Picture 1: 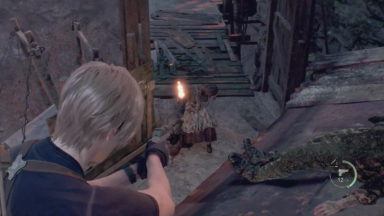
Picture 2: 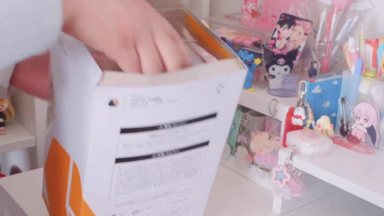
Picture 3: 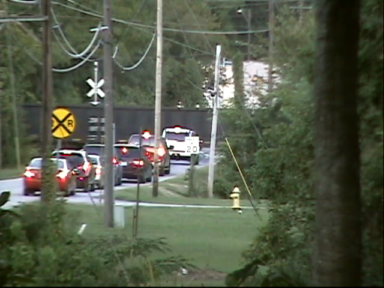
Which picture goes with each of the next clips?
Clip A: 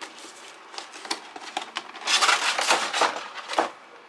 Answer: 2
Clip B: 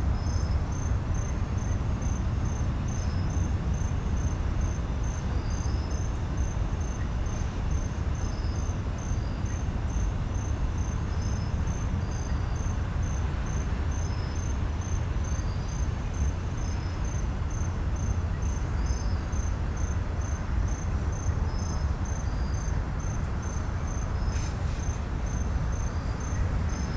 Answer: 3